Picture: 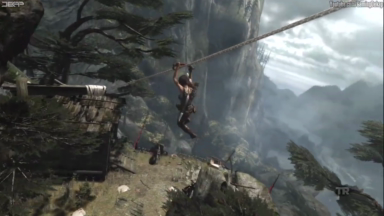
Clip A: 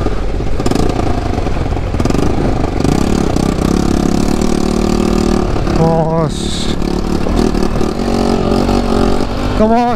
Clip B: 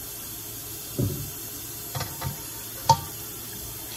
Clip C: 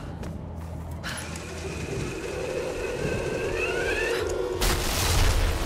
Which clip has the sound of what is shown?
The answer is C